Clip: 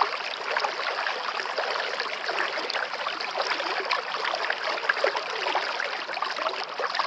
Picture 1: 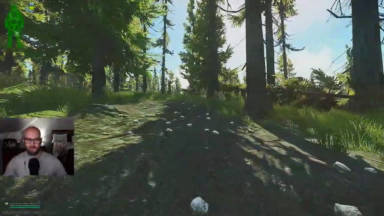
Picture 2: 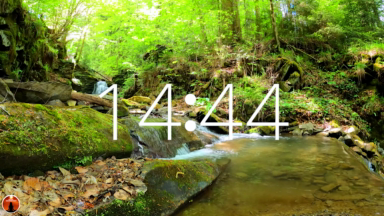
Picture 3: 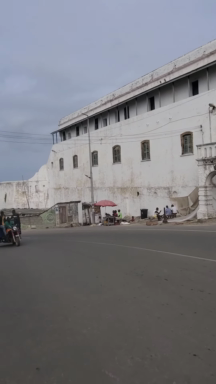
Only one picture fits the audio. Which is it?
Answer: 2